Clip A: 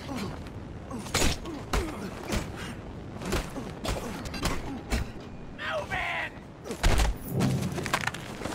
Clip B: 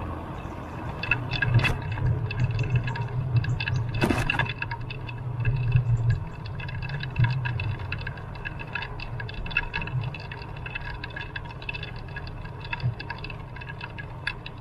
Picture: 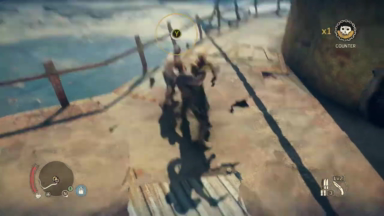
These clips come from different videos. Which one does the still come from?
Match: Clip A